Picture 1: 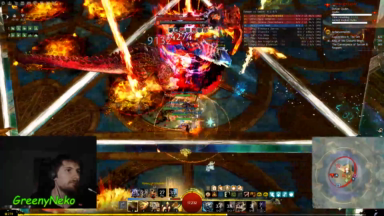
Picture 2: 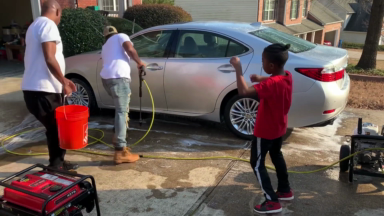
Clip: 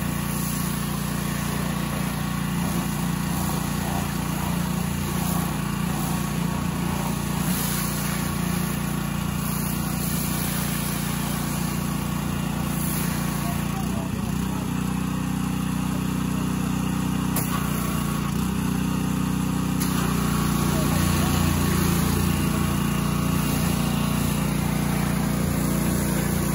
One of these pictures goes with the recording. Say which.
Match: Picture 2